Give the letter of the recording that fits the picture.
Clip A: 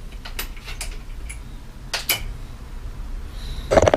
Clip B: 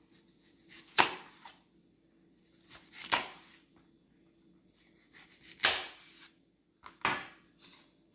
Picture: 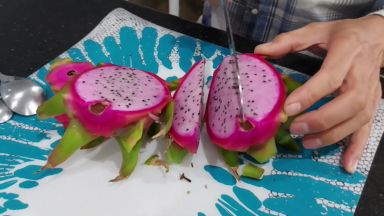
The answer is B